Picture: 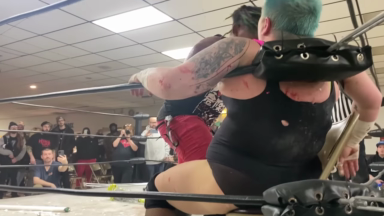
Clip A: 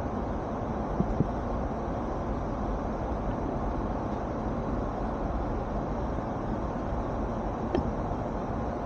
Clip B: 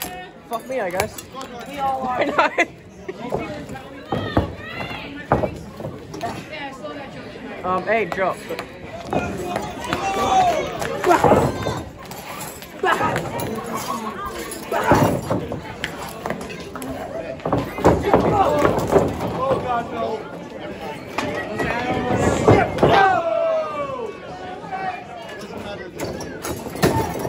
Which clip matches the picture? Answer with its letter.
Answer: B